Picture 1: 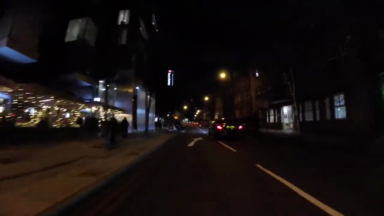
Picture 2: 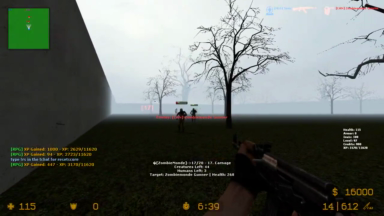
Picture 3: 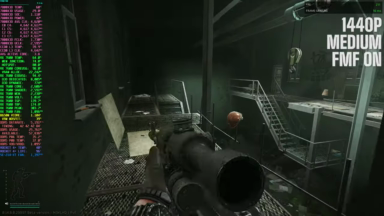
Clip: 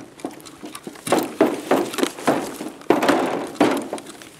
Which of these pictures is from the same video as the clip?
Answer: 3